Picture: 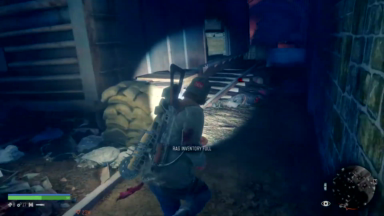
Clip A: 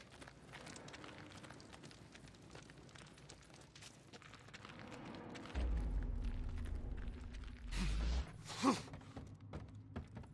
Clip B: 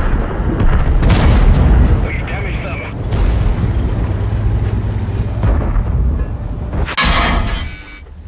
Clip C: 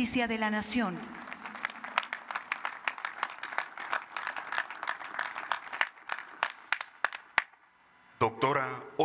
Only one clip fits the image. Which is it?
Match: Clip A